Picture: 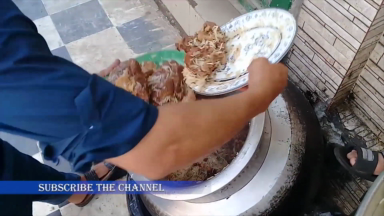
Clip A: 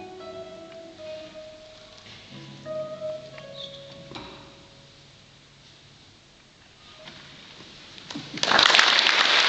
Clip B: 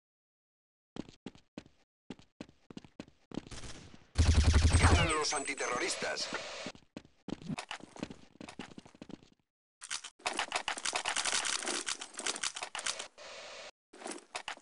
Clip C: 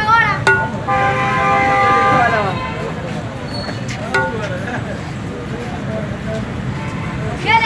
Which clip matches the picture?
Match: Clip C